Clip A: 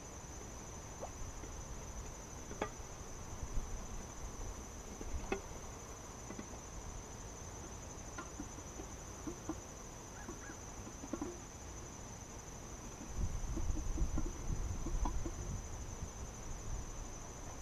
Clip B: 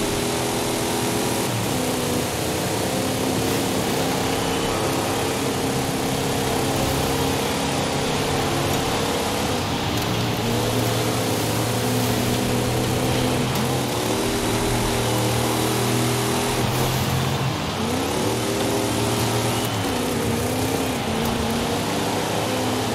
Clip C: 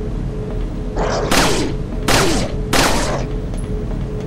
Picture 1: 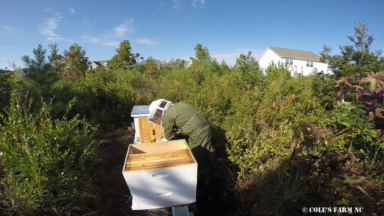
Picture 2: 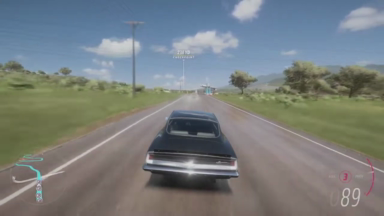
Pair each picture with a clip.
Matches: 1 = A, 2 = B